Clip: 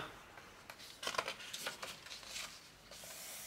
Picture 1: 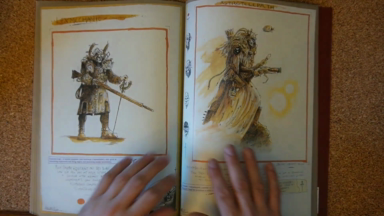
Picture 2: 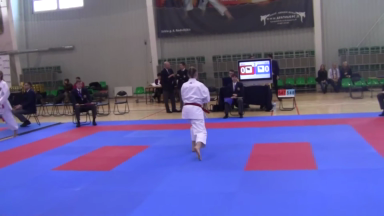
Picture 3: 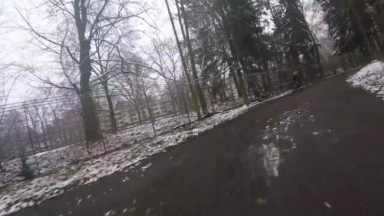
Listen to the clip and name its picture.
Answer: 1